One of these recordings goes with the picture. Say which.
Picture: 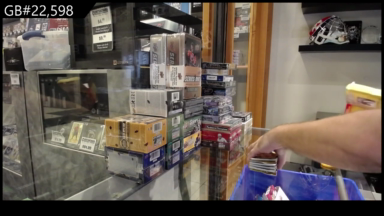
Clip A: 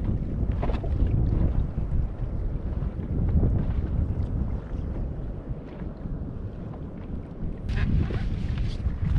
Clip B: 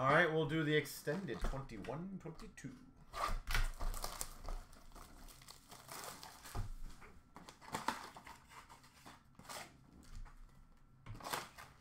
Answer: B